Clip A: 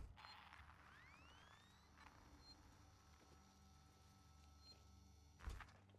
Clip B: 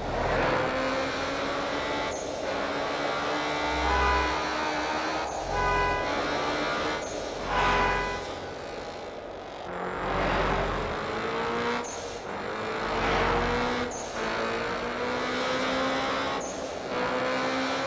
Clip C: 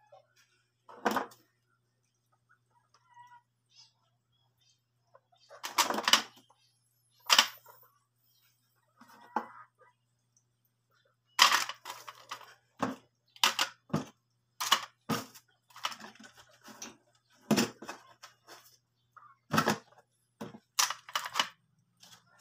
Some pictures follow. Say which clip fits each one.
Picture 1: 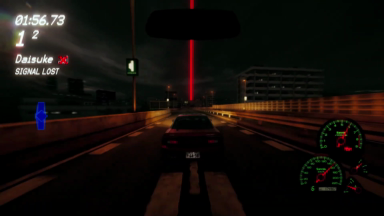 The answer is B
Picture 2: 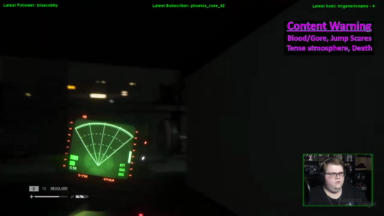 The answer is A